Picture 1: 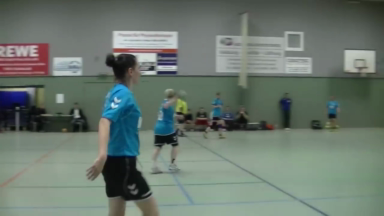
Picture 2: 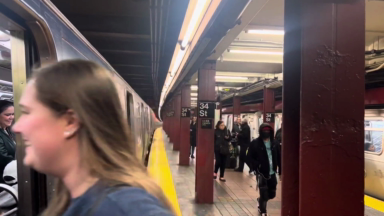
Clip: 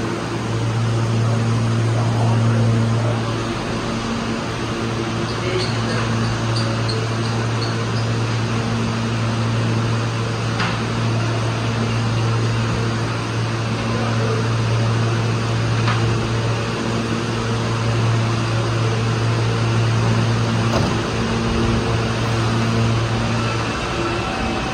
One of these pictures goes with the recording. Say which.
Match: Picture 2